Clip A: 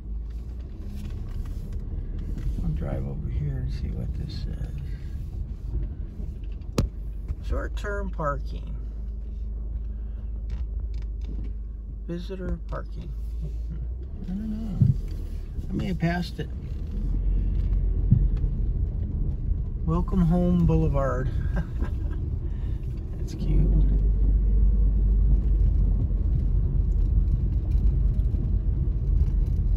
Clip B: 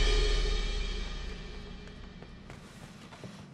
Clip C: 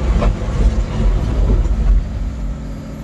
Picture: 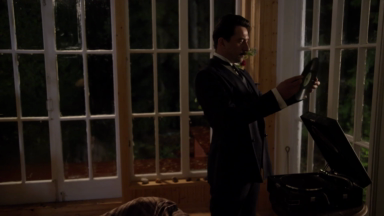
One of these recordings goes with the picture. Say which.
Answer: B